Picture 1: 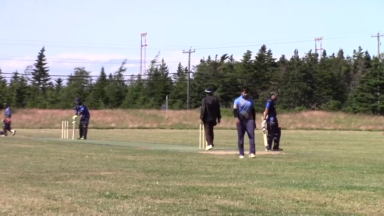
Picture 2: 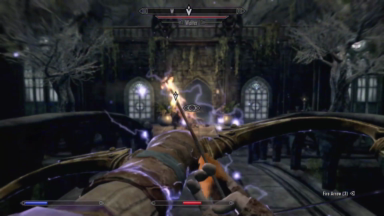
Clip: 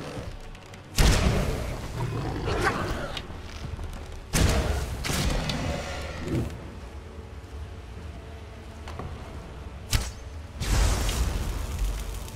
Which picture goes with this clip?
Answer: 2